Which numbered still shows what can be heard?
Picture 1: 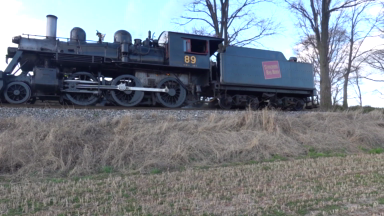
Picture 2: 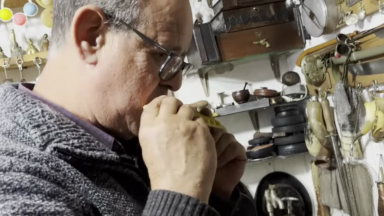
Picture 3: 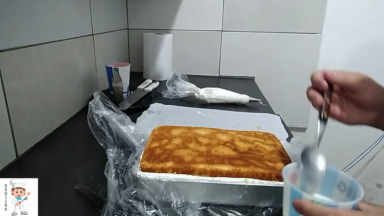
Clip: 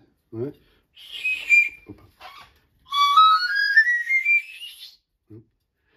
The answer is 2